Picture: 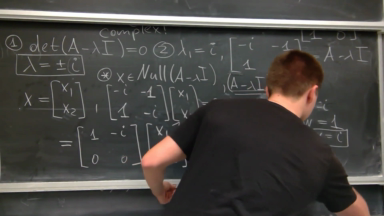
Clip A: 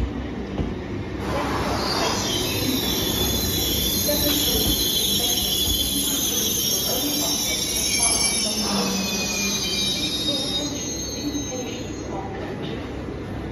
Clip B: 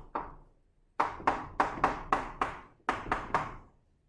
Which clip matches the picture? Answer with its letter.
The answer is B